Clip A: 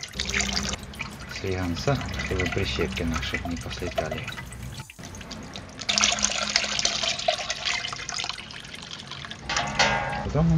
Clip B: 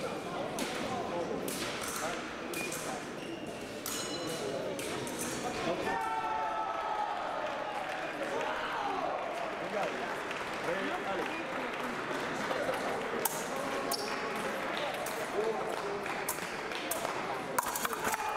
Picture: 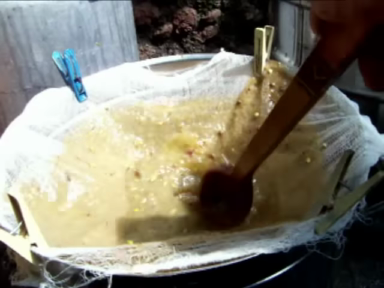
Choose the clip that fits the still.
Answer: A